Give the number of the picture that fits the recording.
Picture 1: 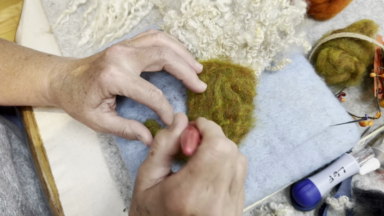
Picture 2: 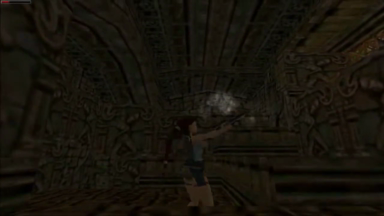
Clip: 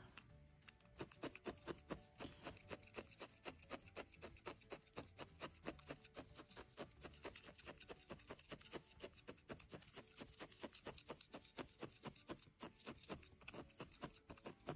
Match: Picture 1